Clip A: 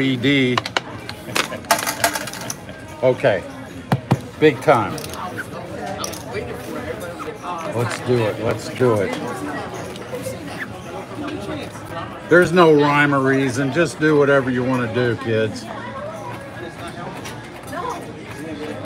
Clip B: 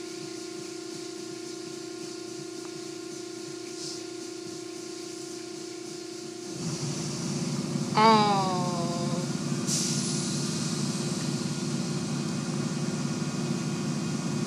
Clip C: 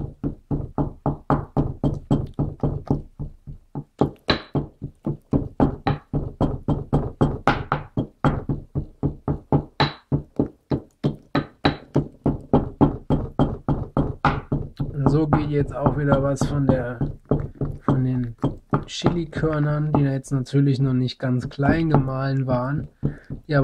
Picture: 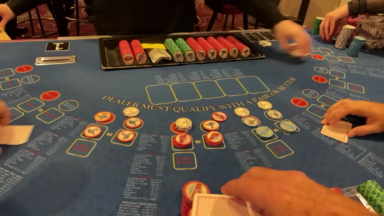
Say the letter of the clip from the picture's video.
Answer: A